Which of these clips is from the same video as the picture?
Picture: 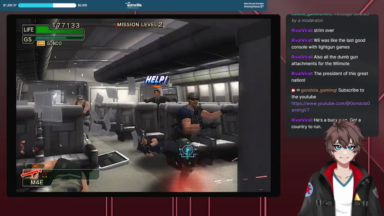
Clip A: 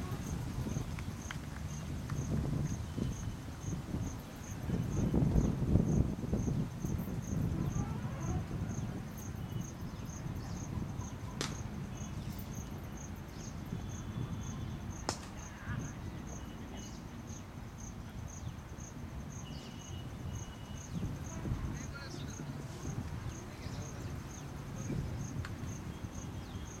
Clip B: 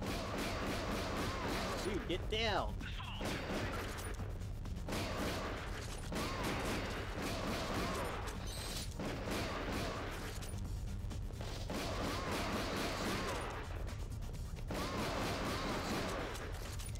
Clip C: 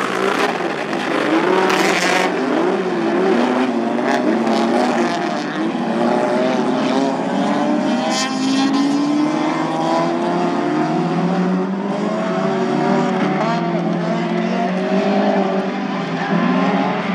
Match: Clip B